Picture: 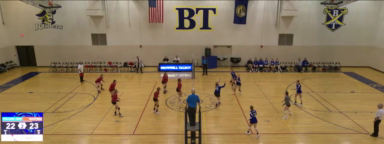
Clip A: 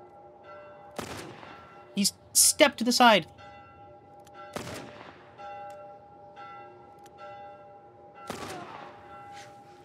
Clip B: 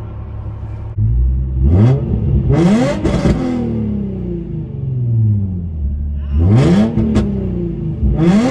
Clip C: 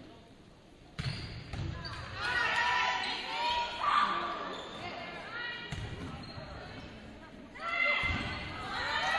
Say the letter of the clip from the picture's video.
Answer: C